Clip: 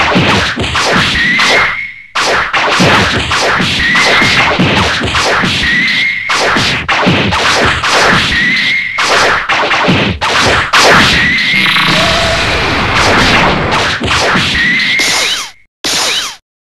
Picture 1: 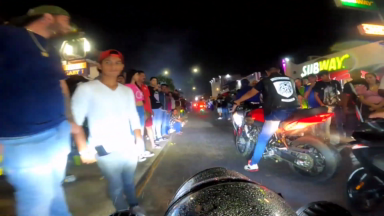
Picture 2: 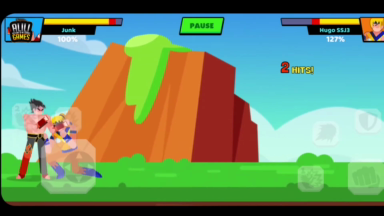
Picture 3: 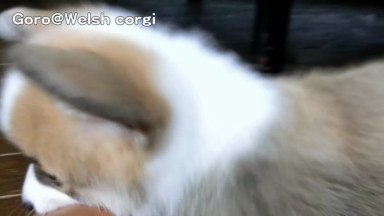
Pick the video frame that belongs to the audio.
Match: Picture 2